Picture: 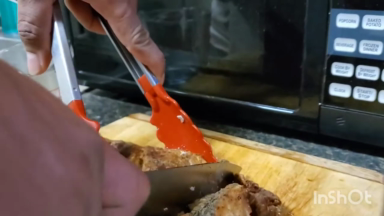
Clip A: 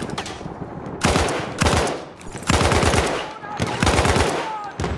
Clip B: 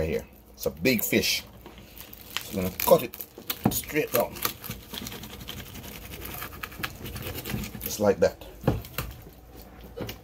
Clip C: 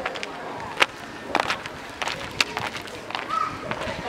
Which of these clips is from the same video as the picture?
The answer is B